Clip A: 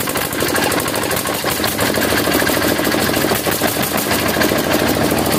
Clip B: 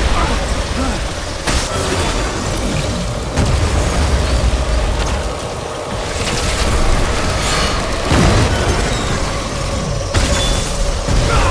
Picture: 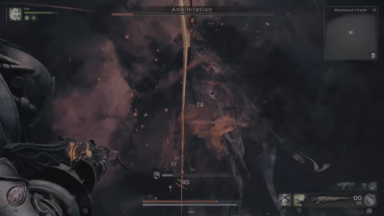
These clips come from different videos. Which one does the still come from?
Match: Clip B